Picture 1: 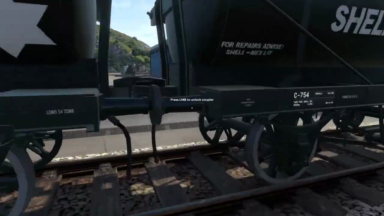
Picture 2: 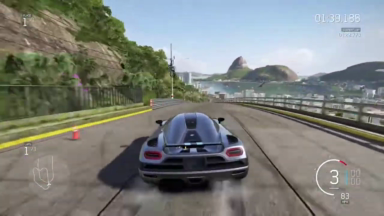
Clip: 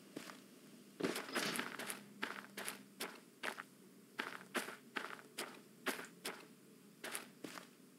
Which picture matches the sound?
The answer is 1